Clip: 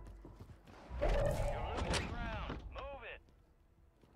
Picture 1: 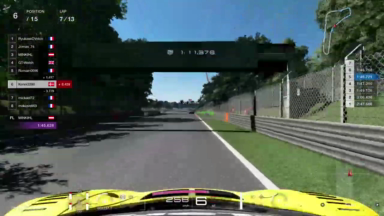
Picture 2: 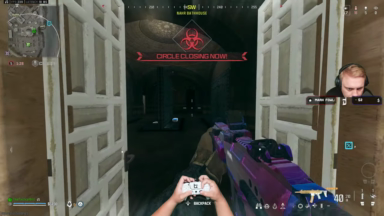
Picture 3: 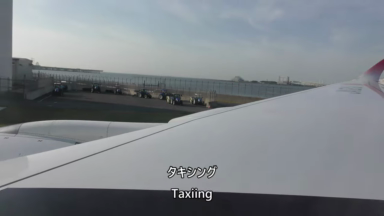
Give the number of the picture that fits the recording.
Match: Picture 2